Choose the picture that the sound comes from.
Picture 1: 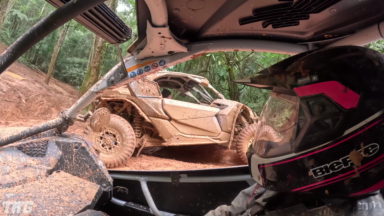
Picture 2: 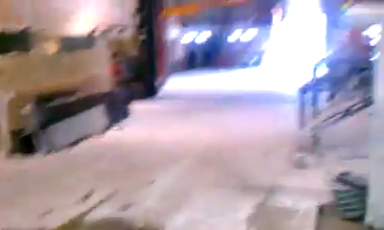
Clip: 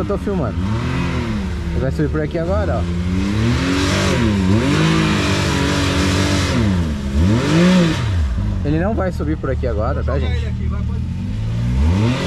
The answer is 1